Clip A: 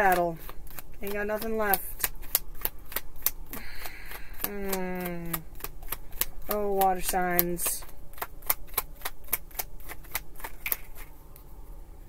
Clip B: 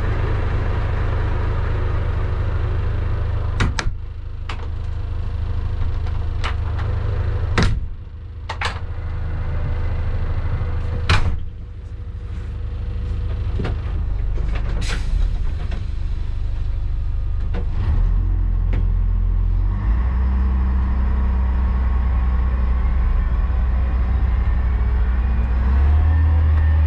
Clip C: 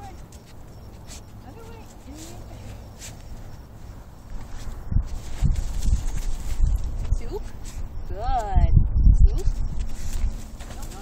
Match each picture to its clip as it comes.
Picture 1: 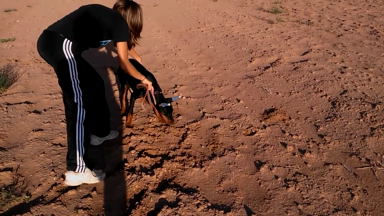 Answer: C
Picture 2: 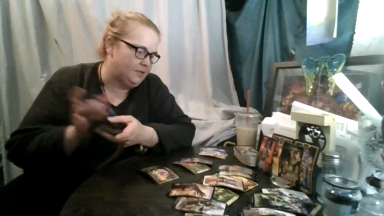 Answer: A